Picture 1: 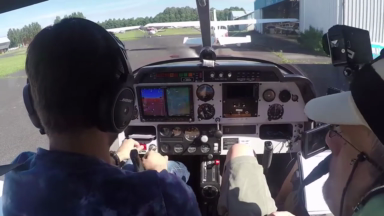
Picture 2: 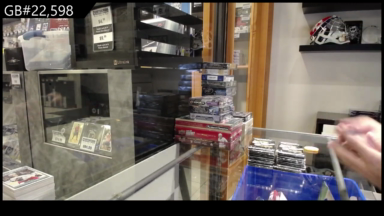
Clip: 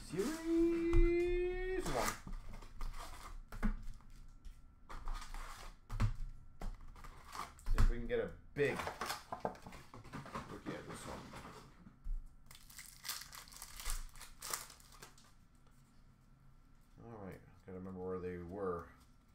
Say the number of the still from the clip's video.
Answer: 2